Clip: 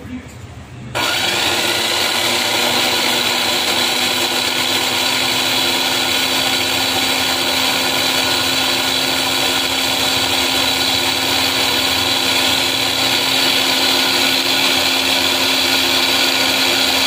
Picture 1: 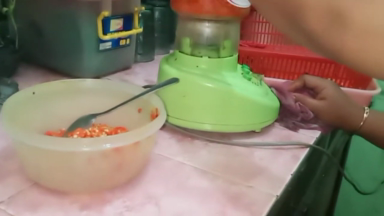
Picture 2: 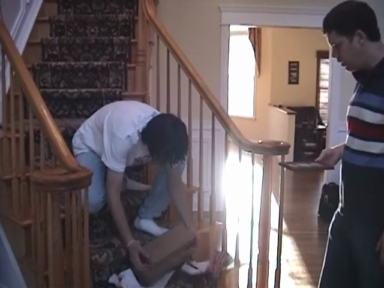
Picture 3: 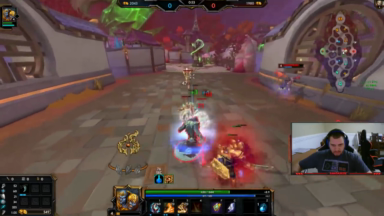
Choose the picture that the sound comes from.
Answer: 1